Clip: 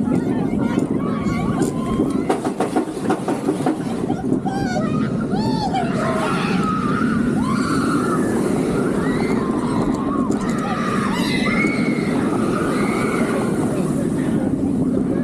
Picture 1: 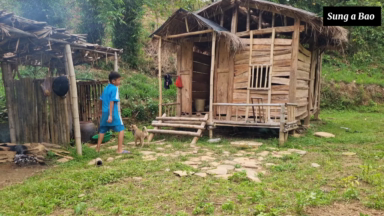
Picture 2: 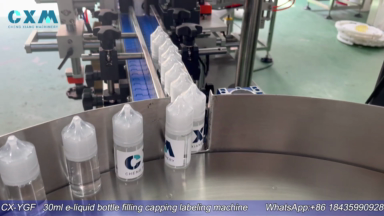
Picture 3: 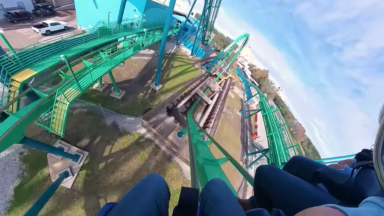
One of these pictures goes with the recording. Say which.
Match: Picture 3